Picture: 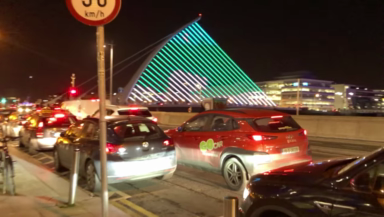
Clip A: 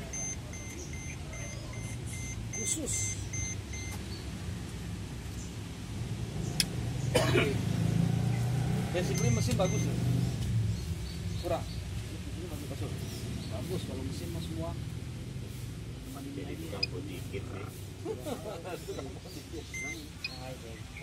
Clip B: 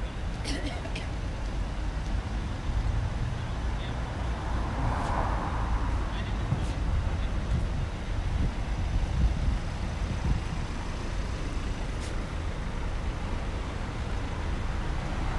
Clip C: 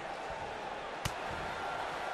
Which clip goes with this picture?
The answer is B